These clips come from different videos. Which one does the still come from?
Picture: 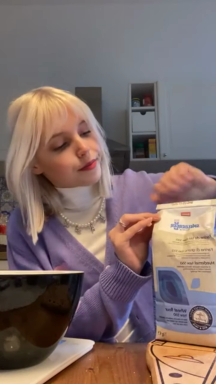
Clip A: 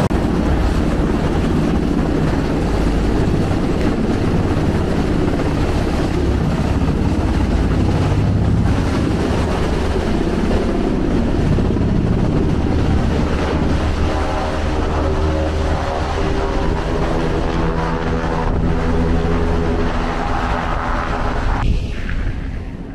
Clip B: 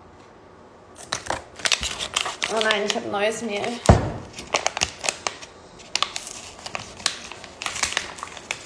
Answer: B